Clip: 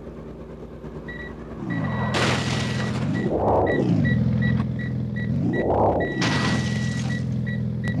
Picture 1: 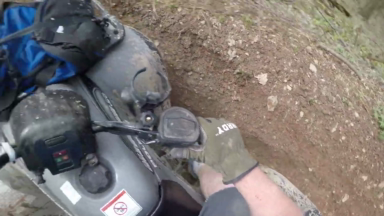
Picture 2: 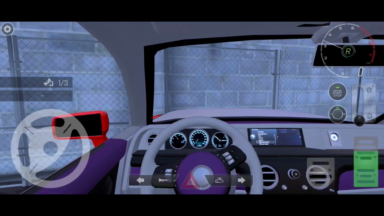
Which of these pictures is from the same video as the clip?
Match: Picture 2